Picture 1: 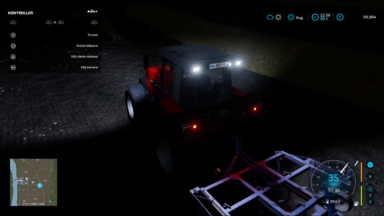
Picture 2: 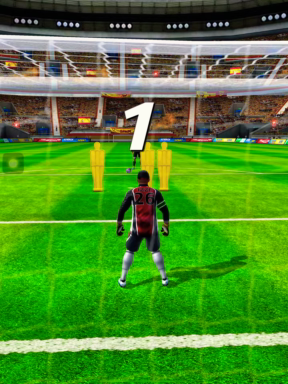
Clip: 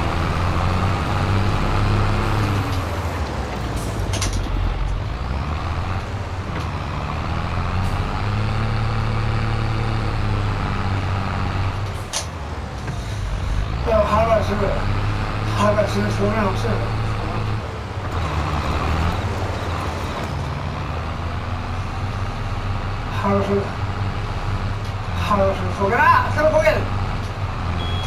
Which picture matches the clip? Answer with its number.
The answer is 1